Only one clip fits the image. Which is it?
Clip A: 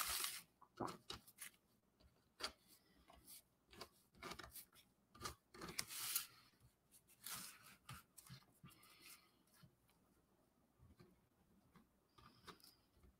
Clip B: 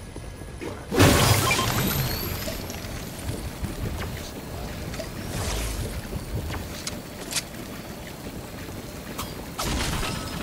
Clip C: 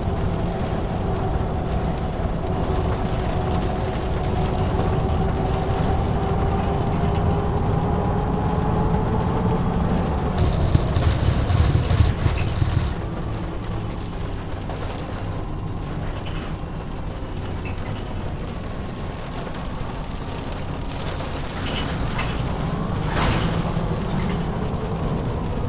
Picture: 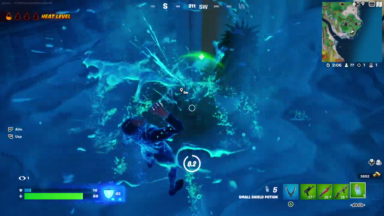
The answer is B